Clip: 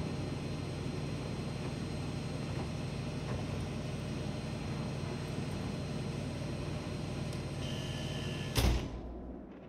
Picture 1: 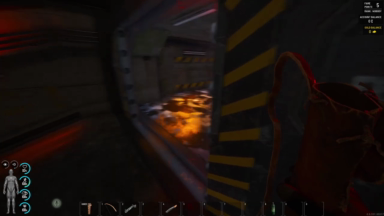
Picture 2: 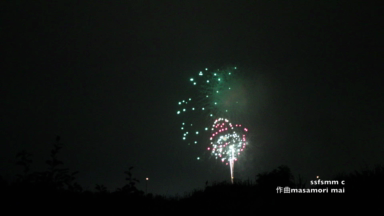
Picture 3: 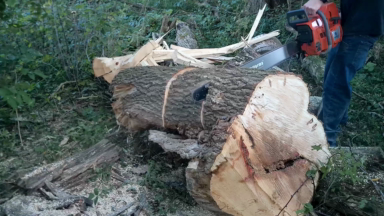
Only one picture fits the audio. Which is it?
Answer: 1